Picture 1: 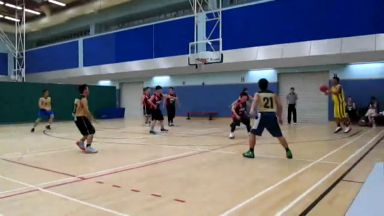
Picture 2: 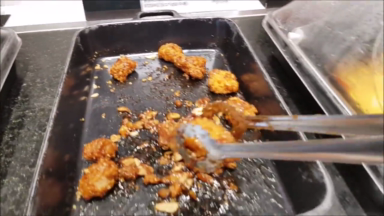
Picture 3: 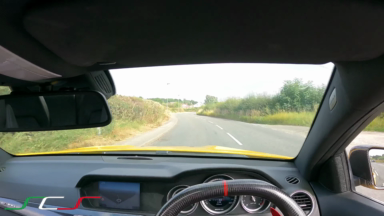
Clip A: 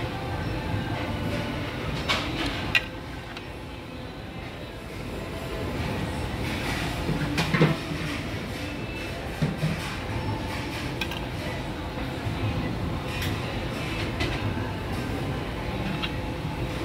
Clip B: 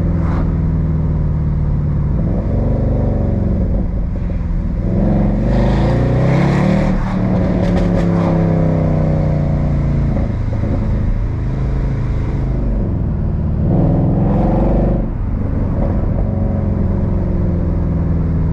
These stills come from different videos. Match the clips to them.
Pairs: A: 2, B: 3